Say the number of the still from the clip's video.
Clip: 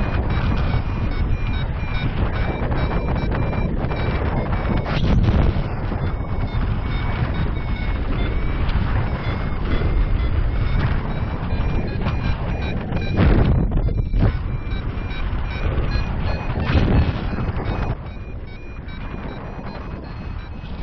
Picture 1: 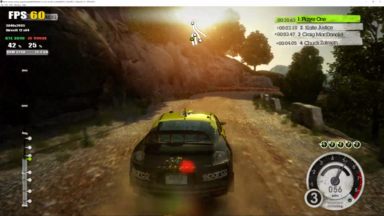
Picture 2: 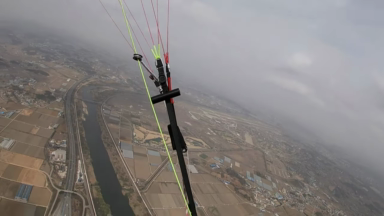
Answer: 2